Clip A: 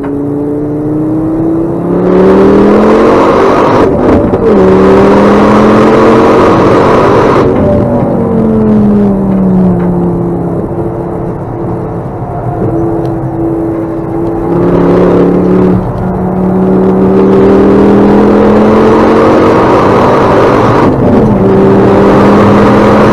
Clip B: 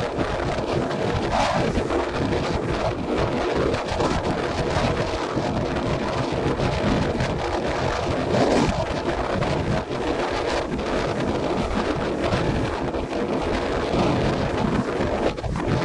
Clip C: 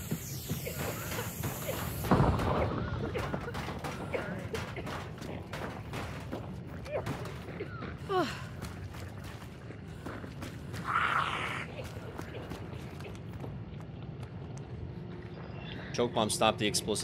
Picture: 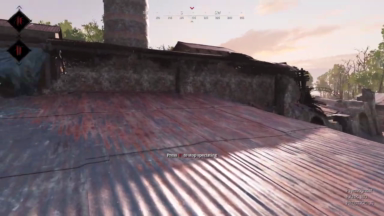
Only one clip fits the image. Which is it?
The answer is C